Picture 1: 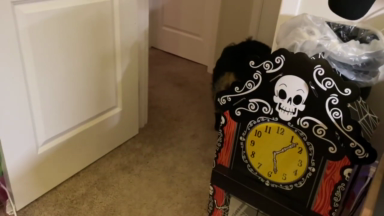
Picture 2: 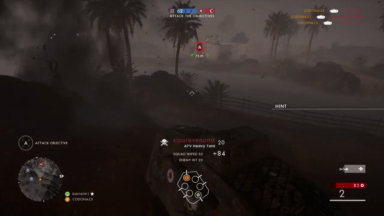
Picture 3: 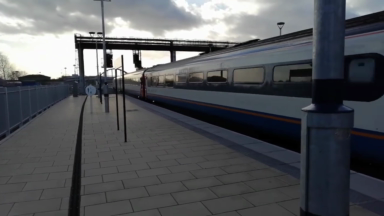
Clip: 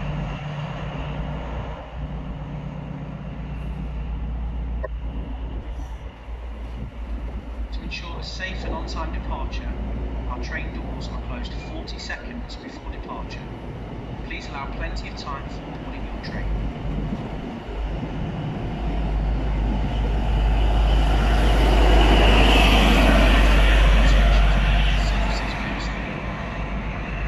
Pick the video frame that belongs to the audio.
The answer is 3